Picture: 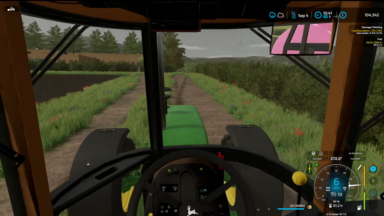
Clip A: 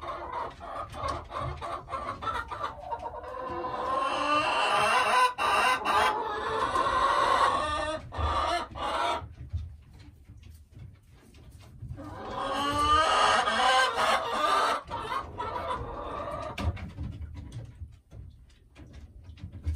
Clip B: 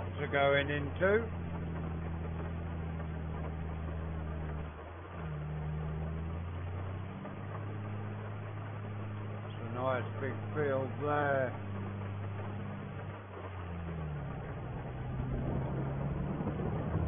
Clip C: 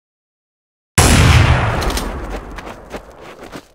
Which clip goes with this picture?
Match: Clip B